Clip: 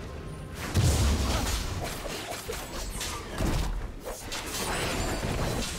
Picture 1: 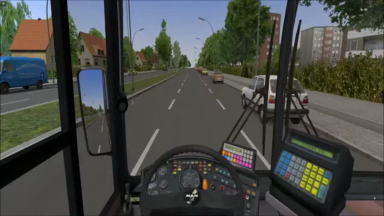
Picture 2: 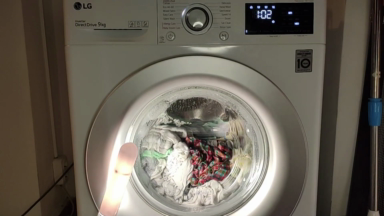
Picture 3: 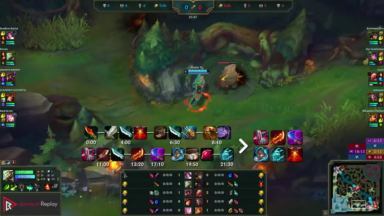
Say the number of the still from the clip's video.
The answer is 3